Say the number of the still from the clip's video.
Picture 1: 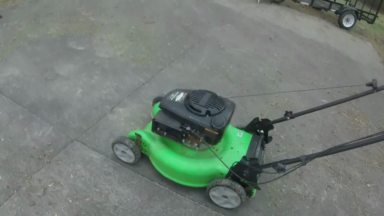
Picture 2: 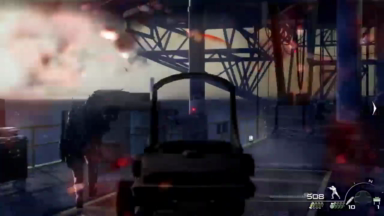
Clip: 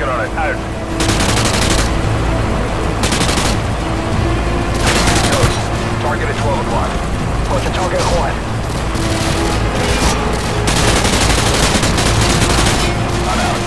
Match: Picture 2